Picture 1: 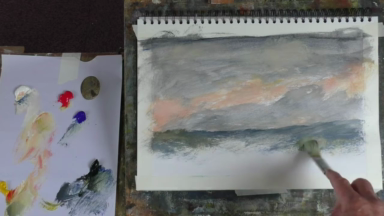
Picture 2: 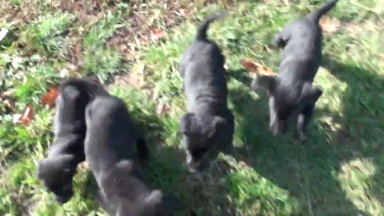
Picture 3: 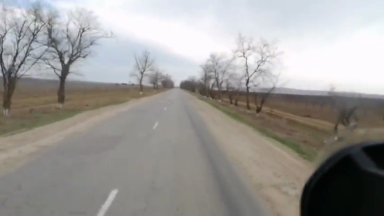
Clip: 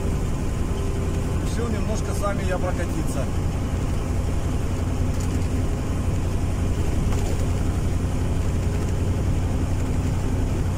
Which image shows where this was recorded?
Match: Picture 3